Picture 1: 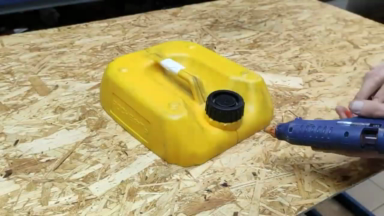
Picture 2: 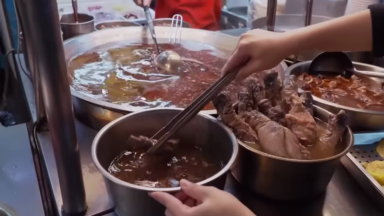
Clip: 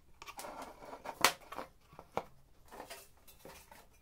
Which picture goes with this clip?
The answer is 1